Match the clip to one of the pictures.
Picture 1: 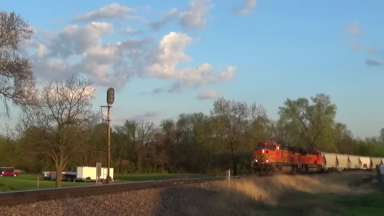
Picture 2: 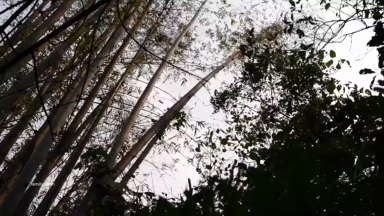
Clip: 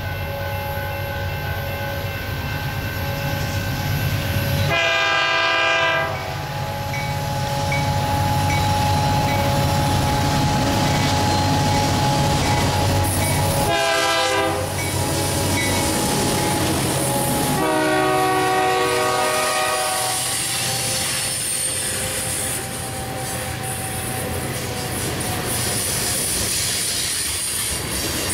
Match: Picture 1